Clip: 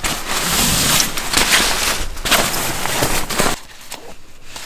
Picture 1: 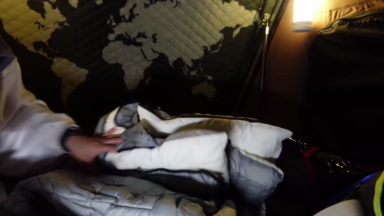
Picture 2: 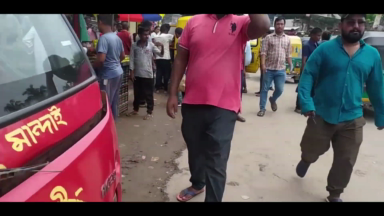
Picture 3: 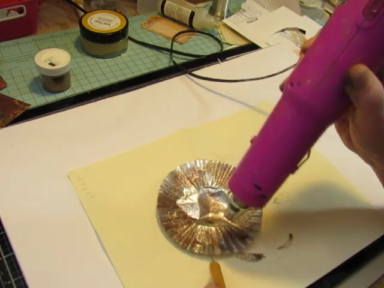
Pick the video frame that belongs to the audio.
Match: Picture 1